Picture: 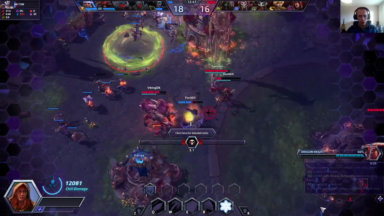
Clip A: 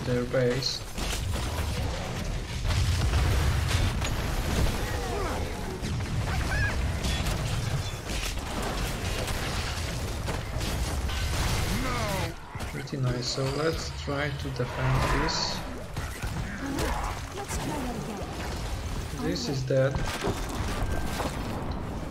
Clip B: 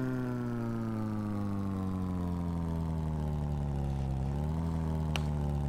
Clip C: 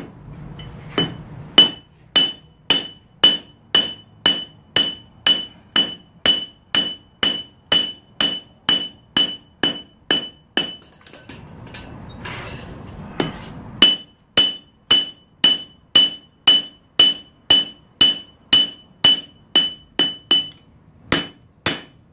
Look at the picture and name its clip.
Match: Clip A